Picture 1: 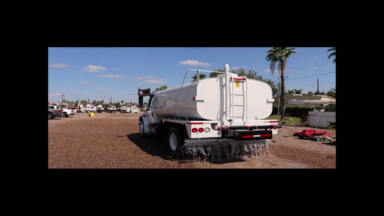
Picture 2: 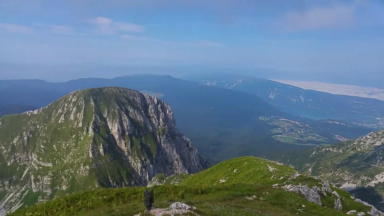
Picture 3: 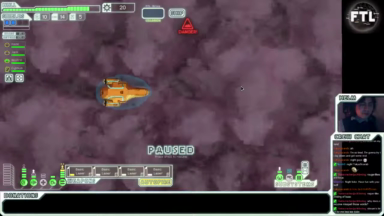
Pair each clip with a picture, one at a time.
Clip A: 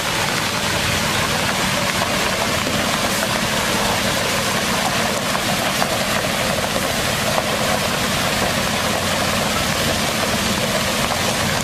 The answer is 1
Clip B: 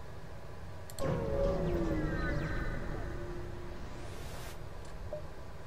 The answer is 3